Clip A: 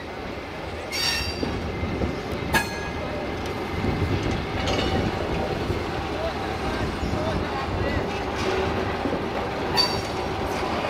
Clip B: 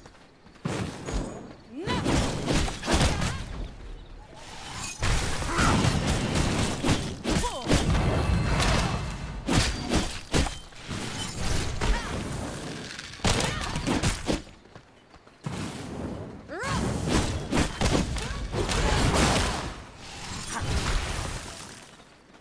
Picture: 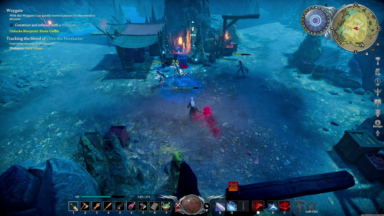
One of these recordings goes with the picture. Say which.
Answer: B